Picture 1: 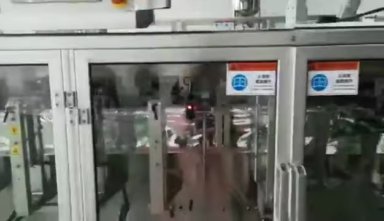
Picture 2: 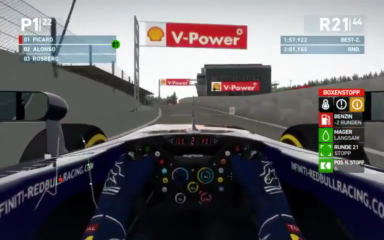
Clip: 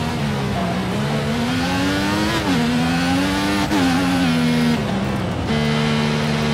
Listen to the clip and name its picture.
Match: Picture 2